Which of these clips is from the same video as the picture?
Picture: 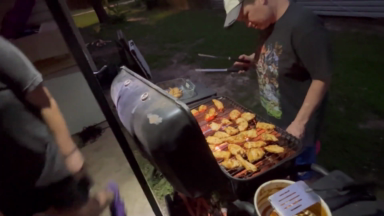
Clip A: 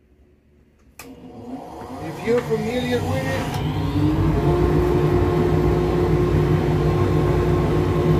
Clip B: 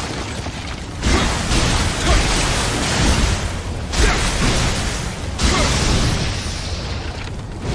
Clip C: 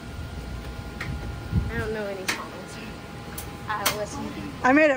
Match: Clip C